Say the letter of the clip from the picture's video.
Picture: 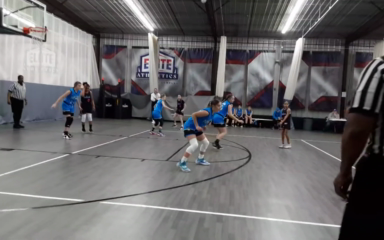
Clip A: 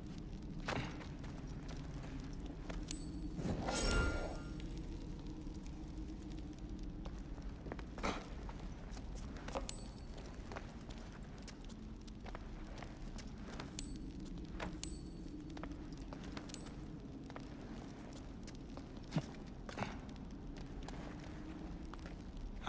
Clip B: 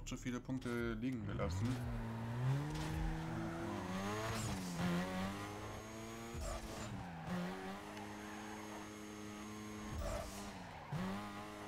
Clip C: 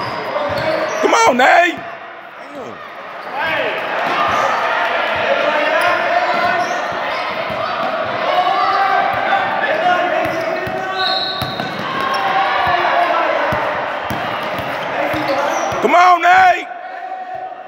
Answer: C